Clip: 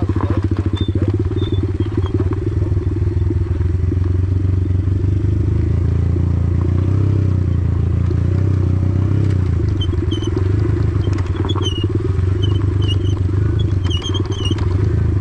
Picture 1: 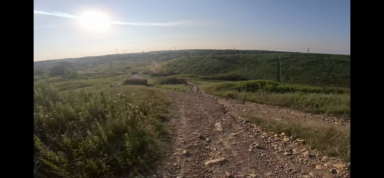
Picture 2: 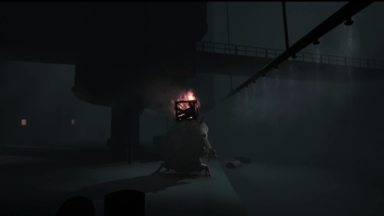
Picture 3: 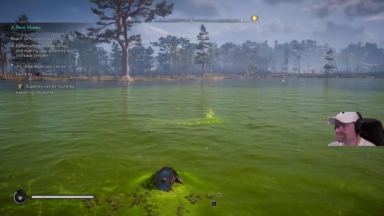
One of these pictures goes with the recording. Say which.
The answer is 1